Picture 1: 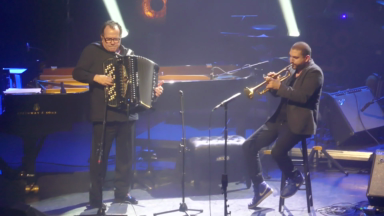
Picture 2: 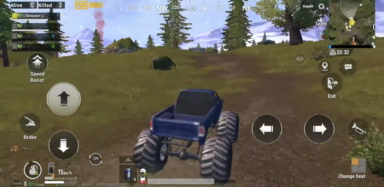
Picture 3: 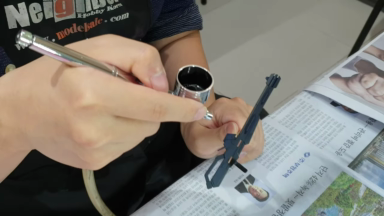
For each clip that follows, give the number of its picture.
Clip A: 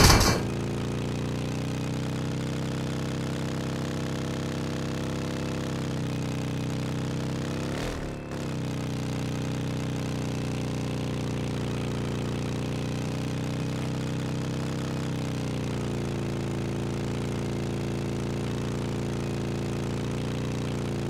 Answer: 2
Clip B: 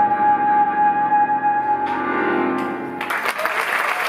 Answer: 1